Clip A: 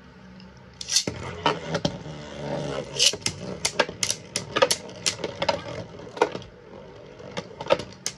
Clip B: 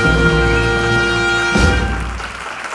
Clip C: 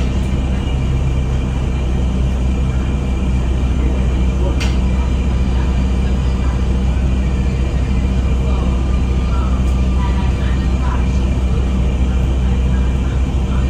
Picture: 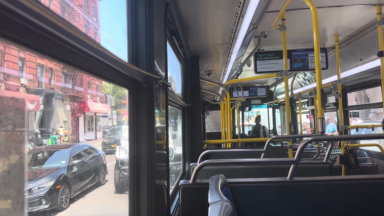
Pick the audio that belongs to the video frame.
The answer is C